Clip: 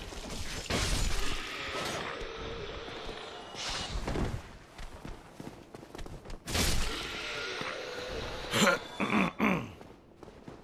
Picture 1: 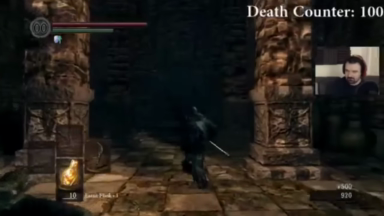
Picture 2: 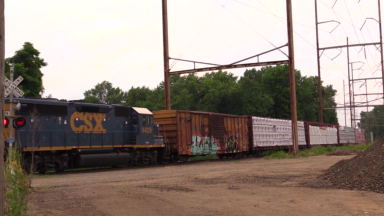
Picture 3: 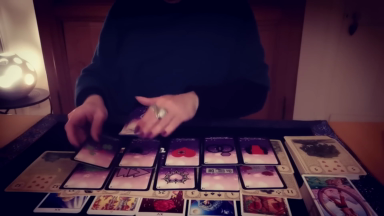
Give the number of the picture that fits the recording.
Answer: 1